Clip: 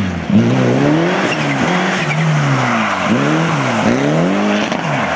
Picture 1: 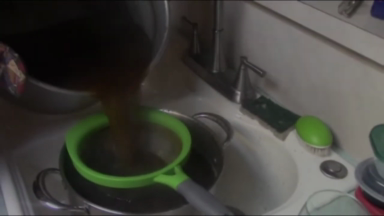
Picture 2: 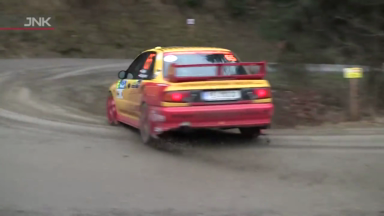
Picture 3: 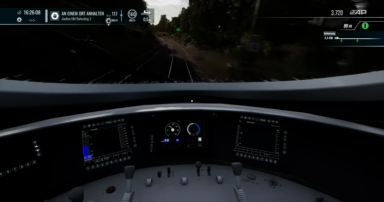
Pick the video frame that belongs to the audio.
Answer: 2